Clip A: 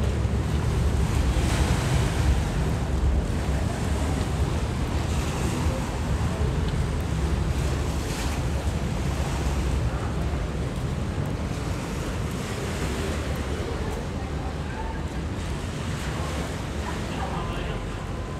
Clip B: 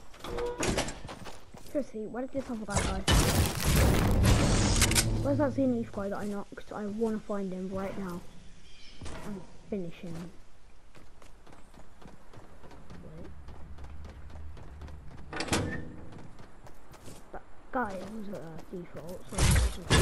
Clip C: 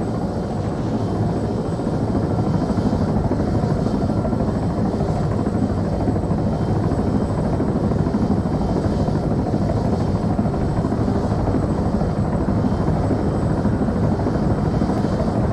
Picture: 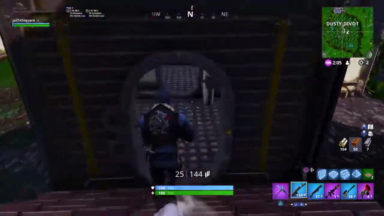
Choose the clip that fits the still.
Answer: B